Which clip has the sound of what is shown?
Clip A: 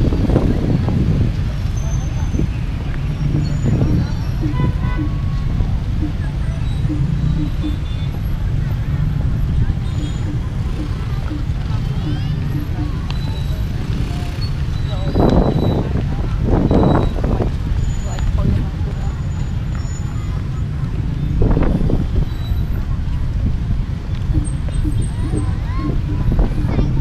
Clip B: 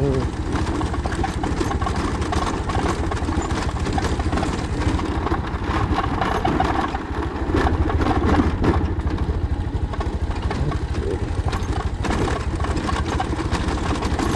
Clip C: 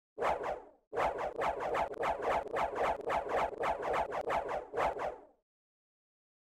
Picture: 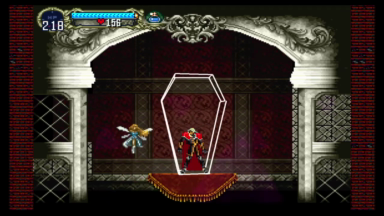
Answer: C